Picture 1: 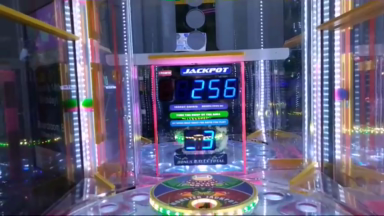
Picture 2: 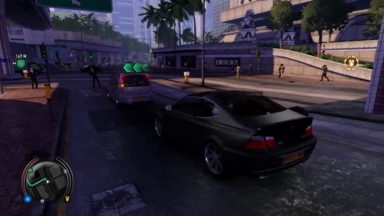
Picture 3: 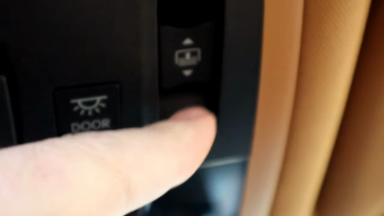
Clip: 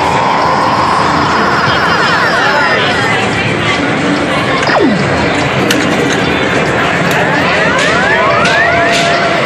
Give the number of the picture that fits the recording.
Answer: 1